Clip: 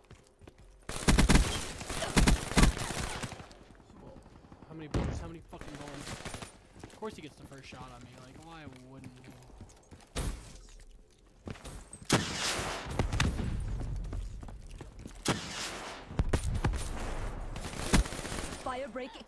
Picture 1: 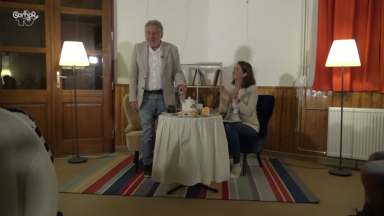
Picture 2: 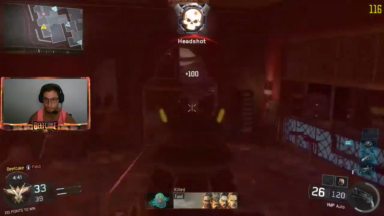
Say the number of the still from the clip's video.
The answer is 2